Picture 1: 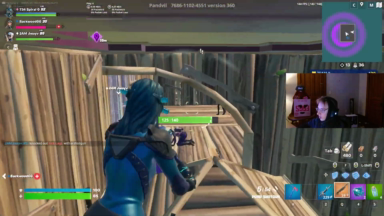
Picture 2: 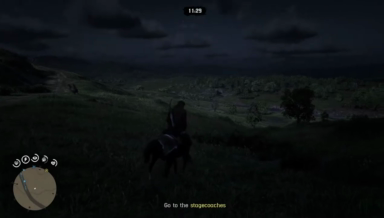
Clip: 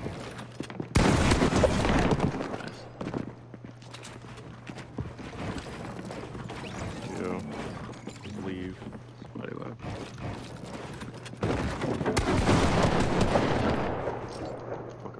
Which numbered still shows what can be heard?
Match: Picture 1